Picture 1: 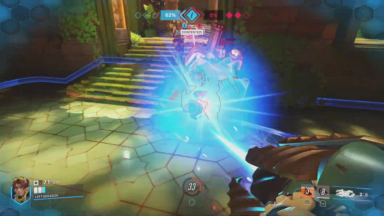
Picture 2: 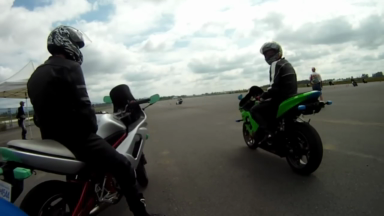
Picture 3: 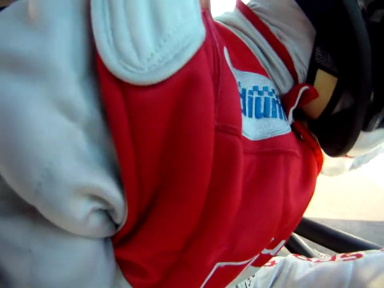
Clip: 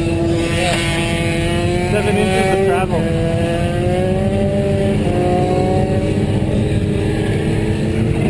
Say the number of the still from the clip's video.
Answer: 2